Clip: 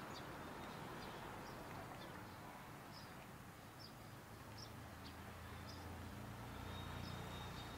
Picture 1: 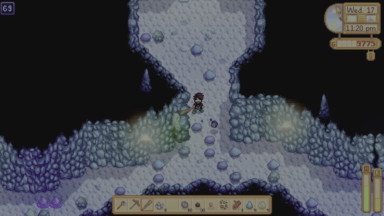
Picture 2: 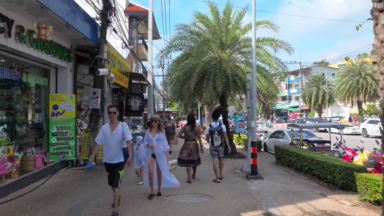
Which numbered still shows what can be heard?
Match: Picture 2